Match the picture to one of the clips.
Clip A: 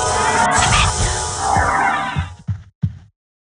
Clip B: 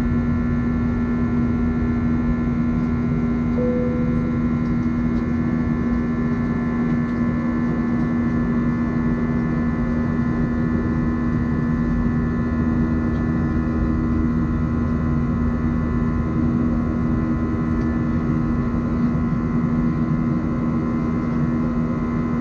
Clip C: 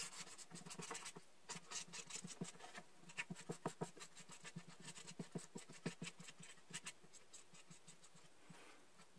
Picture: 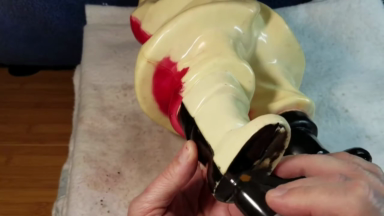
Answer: C